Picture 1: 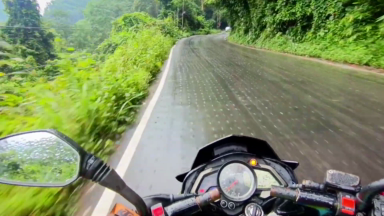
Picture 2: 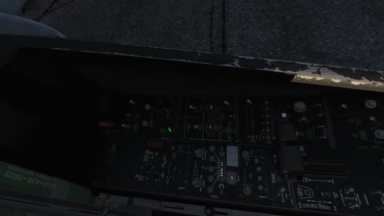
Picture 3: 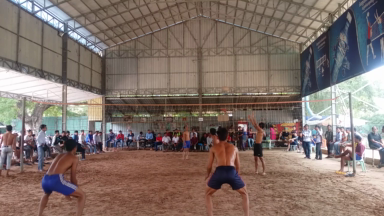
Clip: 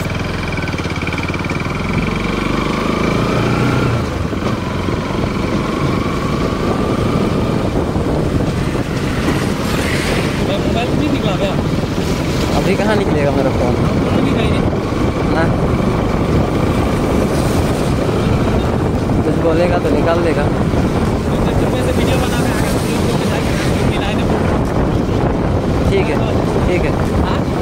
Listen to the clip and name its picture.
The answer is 1